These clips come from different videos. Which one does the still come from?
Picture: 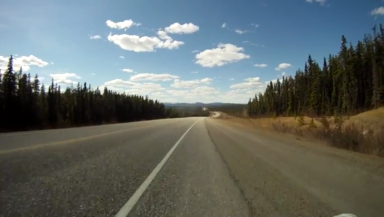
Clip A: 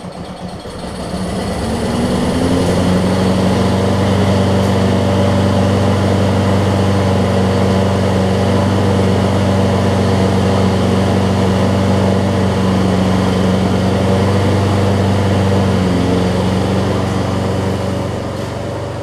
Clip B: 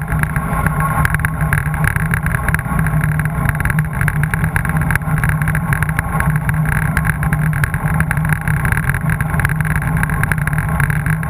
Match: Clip B